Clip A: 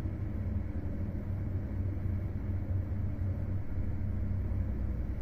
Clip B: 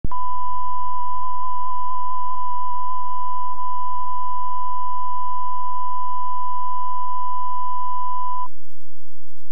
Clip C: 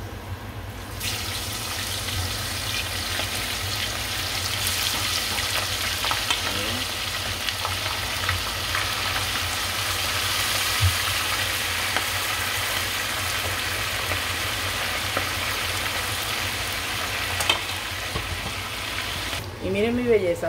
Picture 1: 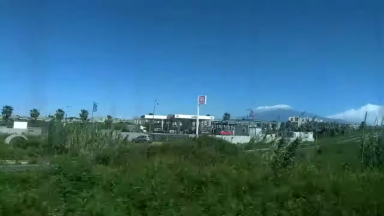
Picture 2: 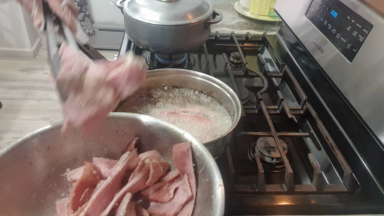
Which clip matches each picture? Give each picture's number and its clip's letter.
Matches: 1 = A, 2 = C